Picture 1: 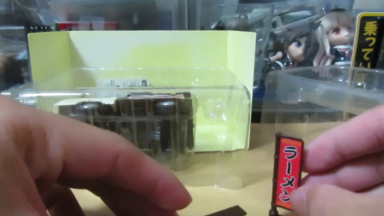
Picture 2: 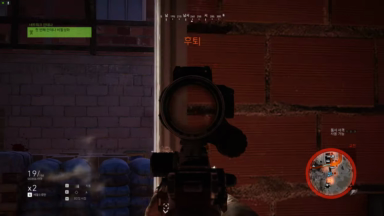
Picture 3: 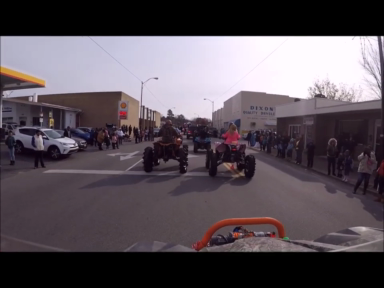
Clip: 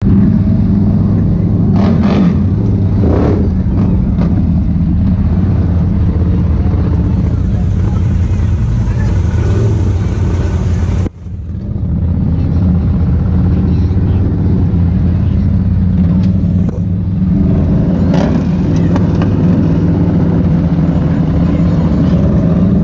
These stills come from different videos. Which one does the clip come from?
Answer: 3